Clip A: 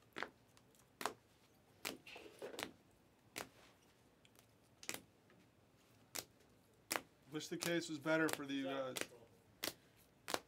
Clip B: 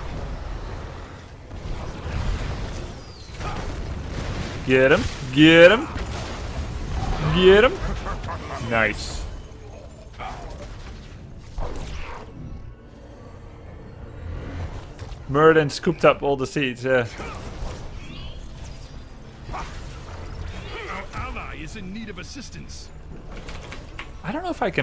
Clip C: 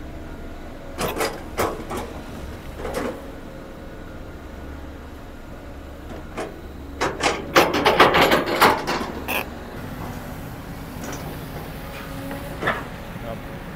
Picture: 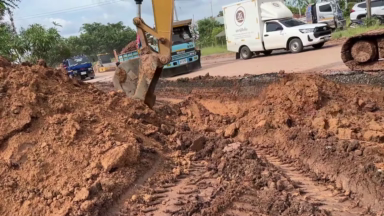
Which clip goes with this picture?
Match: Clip C